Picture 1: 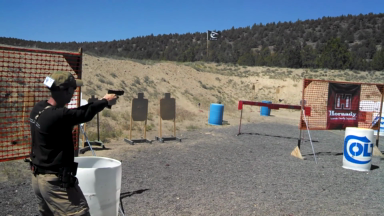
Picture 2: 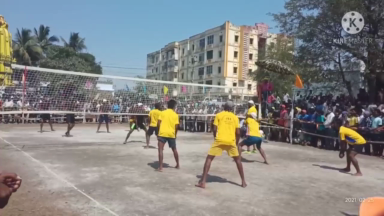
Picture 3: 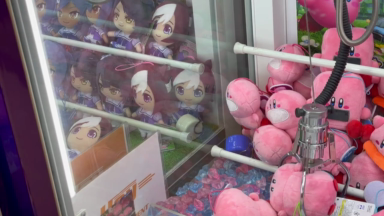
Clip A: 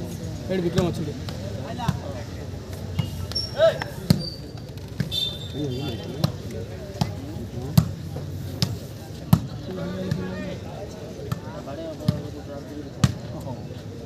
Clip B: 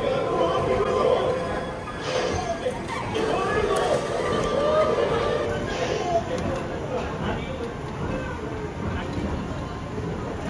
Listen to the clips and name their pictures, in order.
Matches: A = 2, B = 3